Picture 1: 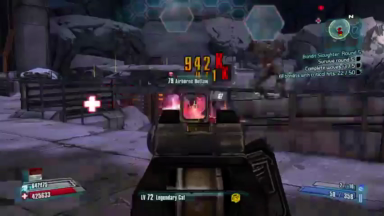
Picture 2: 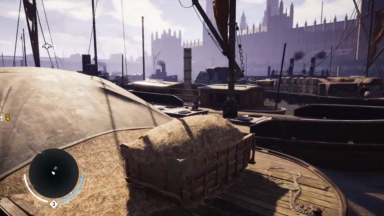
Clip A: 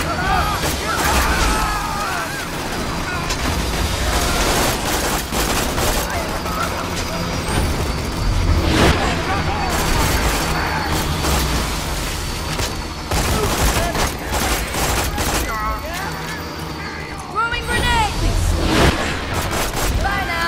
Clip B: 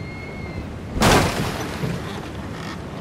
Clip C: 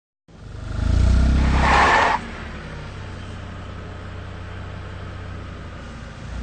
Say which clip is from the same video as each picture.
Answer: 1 A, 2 B